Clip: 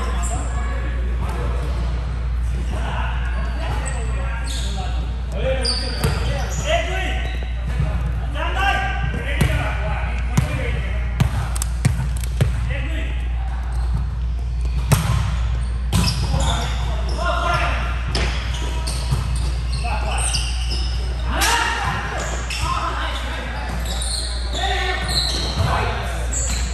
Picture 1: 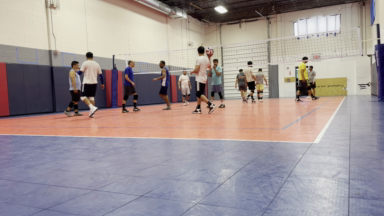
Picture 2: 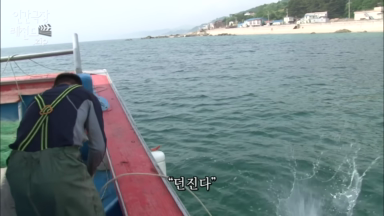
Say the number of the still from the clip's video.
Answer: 1